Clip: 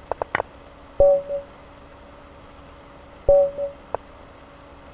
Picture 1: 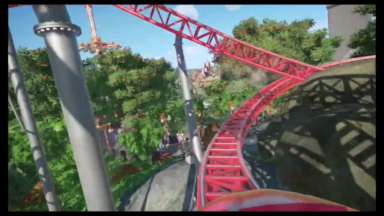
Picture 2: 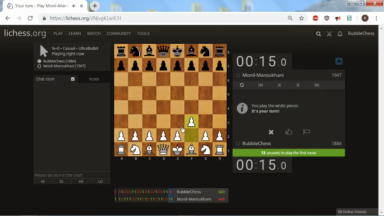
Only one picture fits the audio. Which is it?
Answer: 2